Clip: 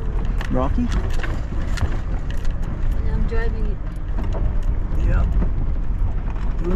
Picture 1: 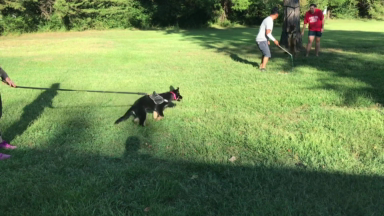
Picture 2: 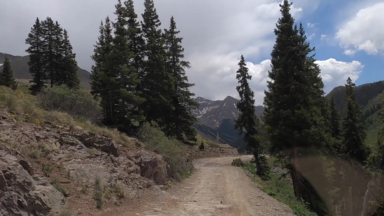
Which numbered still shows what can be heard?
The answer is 2